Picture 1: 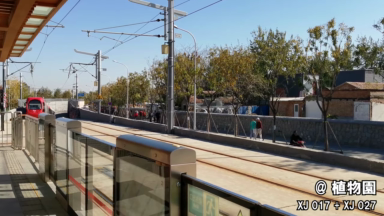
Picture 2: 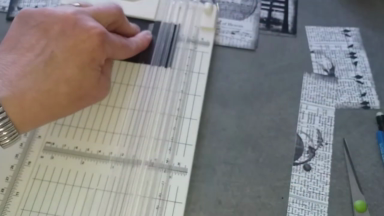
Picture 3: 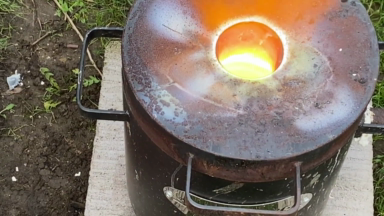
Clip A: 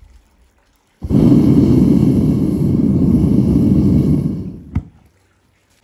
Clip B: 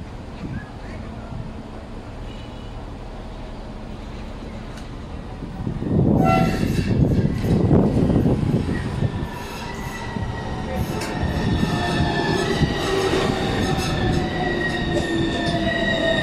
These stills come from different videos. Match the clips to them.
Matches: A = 3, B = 1